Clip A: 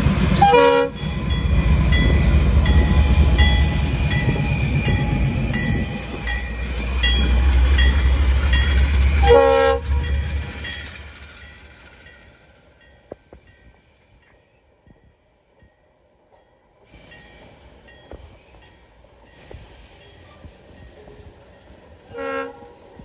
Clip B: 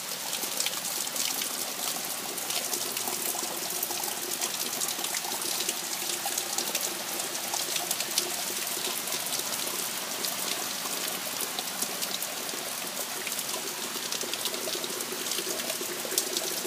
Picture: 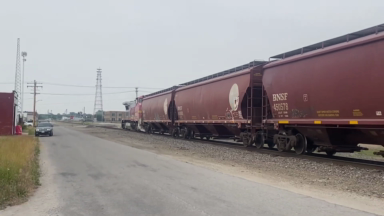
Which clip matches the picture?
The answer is A